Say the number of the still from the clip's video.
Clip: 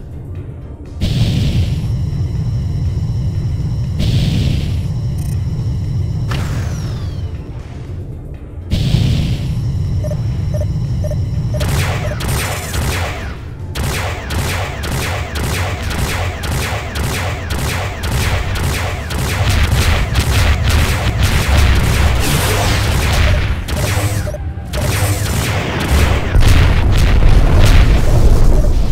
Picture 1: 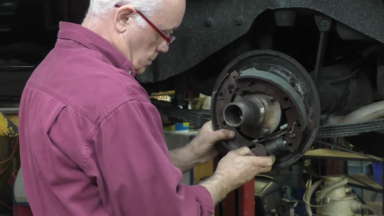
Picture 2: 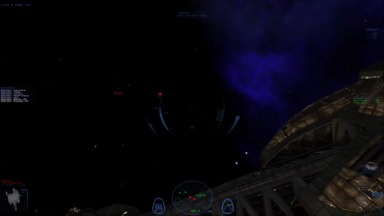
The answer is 2